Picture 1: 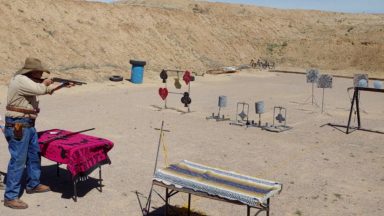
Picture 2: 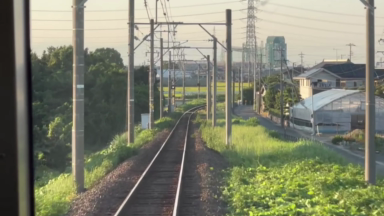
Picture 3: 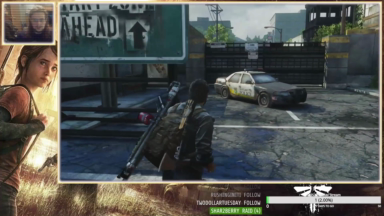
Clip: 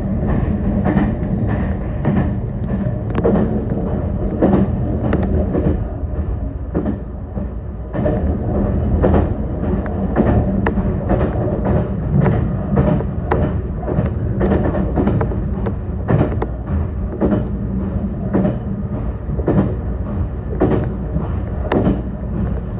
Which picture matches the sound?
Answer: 2